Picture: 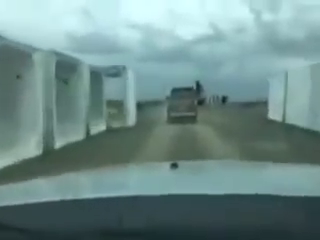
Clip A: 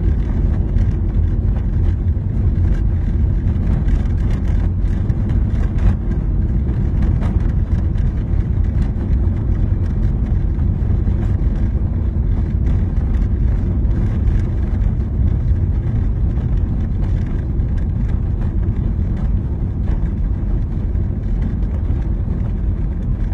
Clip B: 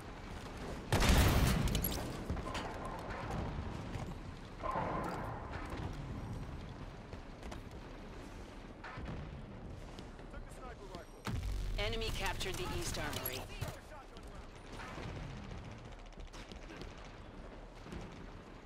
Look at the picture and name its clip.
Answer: A